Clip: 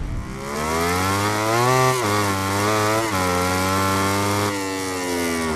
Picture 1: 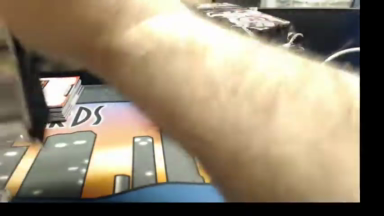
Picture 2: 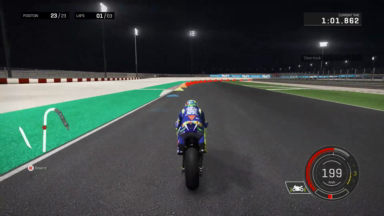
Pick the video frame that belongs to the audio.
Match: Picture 2